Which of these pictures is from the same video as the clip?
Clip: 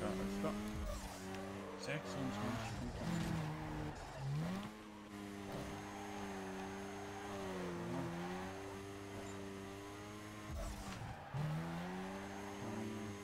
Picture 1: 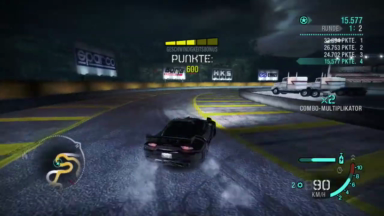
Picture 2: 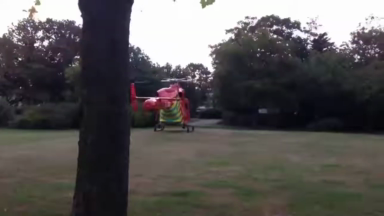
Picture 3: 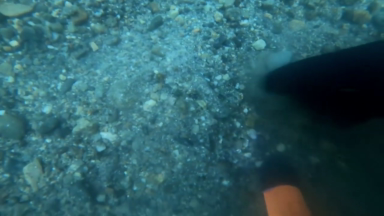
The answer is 1